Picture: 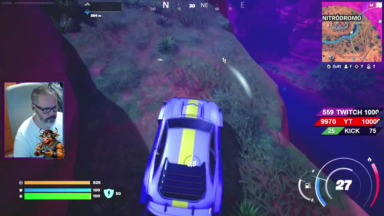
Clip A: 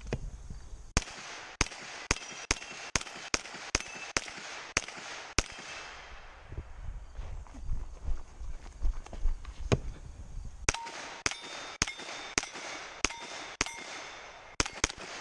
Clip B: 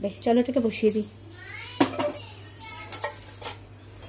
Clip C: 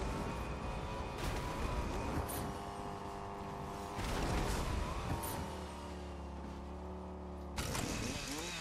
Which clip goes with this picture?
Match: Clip C